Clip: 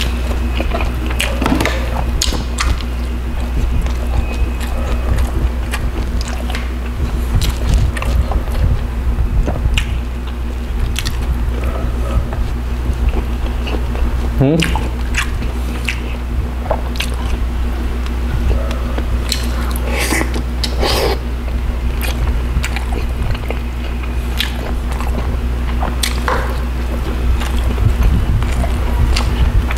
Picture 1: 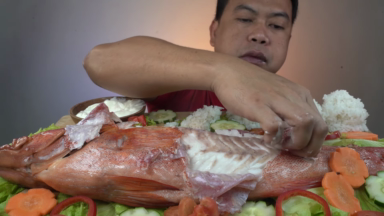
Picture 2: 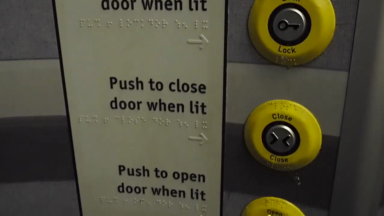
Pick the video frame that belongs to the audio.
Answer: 1